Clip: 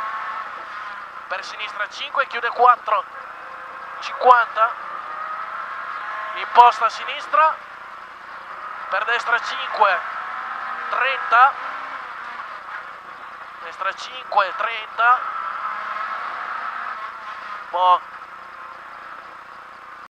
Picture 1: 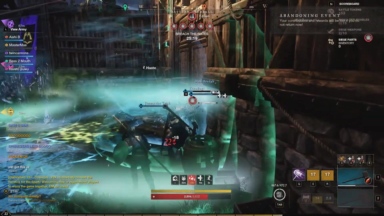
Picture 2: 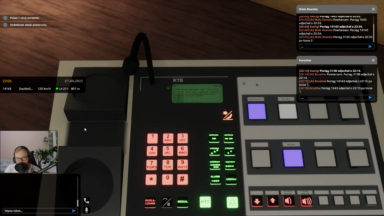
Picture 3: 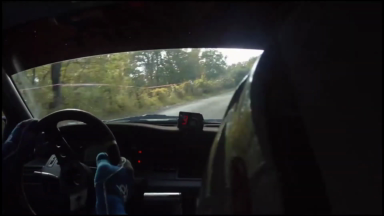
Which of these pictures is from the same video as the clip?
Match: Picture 3